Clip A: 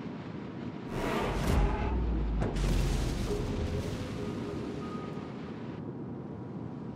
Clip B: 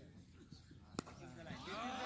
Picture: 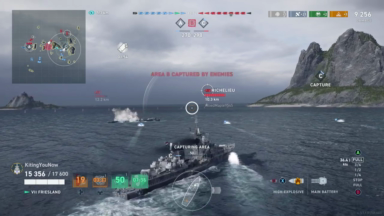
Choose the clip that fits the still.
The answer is A